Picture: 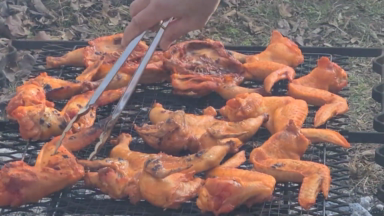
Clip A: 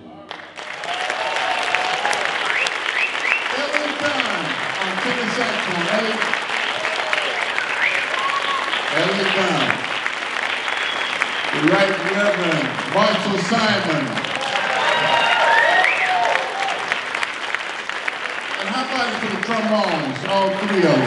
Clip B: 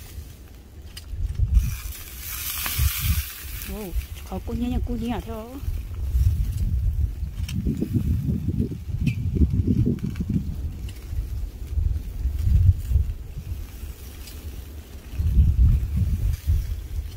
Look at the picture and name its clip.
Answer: B